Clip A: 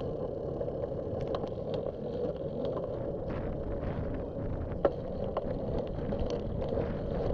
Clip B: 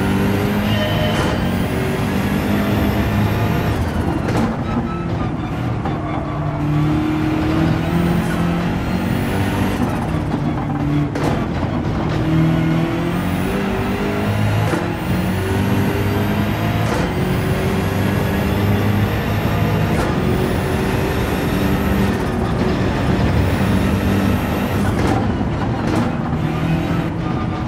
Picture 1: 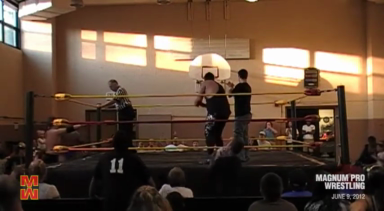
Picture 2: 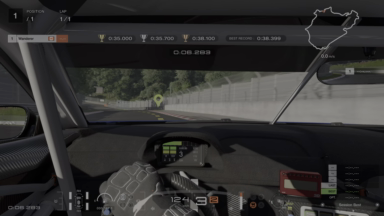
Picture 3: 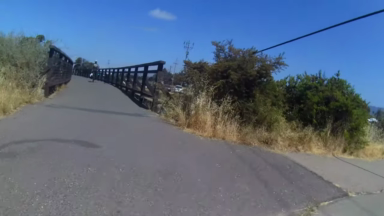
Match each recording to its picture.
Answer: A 3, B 2